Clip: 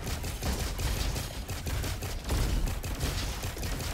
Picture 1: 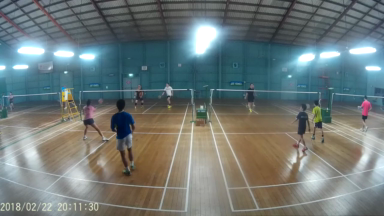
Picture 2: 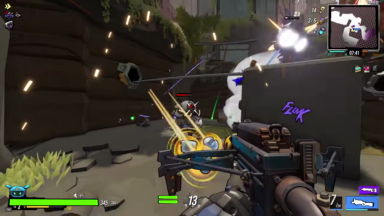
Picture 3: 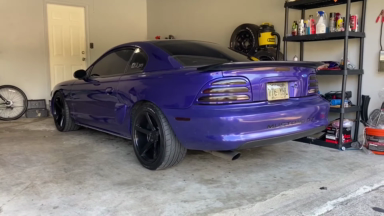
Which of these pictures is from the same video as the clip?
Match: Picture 2